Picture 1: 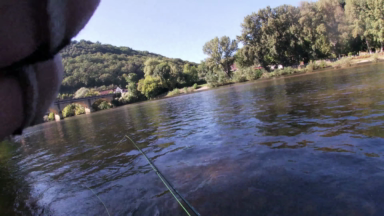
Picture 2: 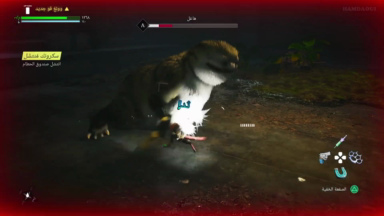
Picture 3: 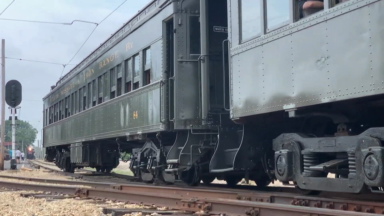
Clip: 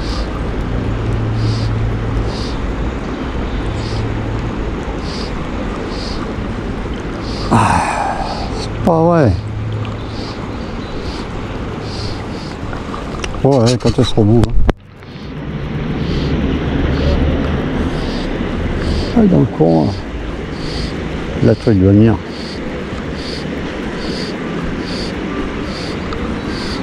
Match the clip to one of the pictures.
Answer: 1